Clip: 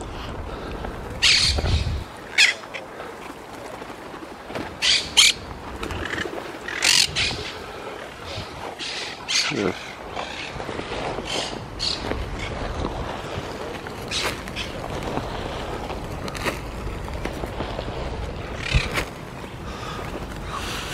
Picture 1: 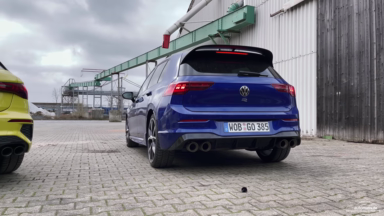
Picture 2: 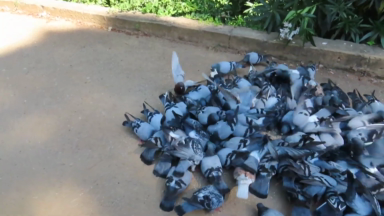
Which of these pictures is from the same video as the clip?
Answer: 2